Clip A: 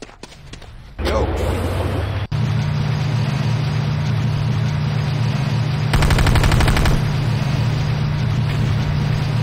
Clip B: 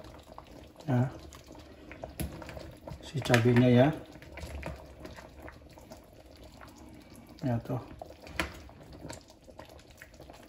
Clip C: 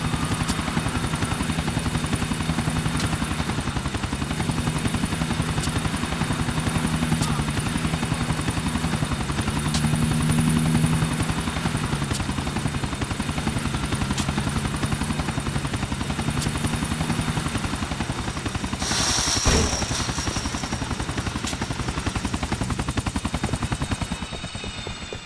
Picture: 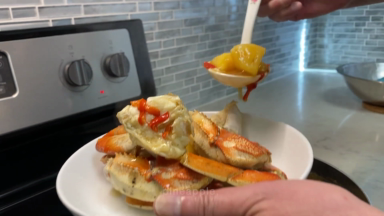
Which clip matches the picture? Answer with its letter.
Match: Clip B